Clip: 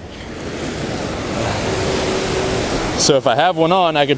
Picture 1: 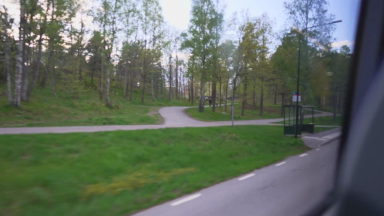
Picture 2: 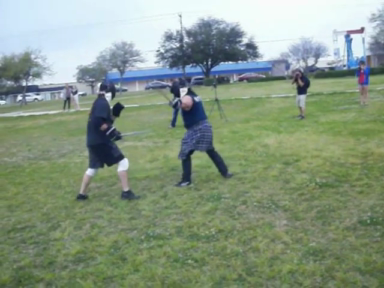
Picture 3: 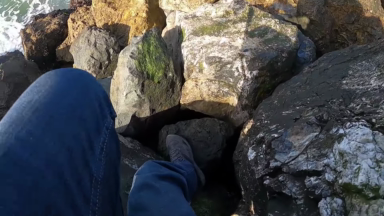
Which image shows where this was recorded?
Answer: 3